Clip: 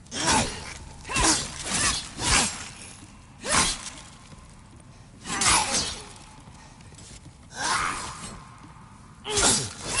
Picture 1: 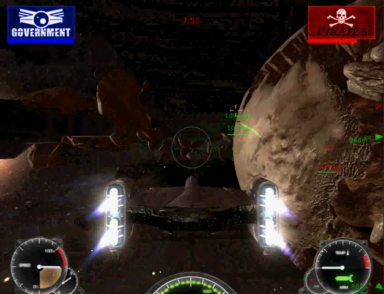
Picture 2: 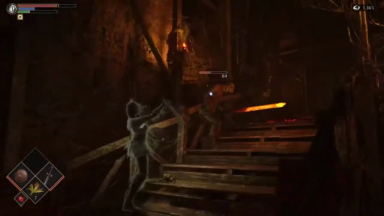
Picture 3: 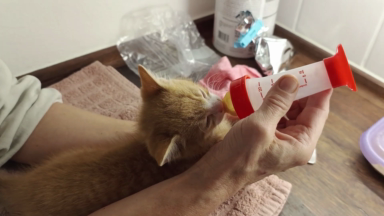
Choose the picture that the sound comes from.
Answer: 2